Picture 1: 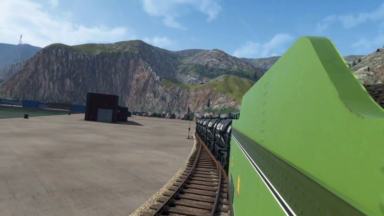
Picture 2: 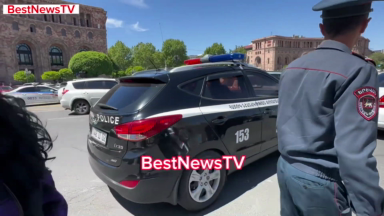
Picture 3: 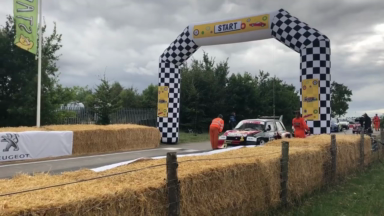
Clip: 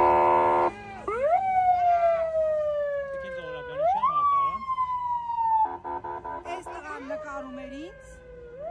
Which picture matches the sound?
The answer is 2